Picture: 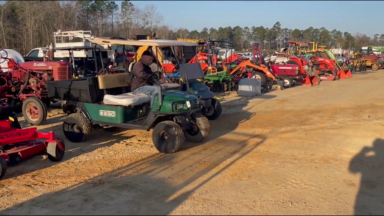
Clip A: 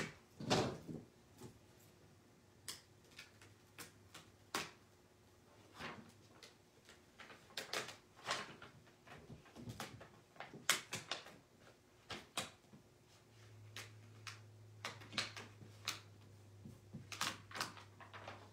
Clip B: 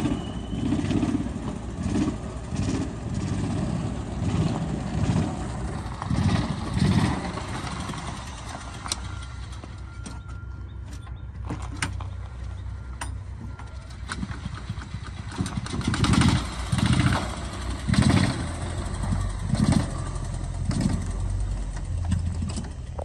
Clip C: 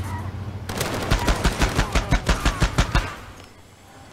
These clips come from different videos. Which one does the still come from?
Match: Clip B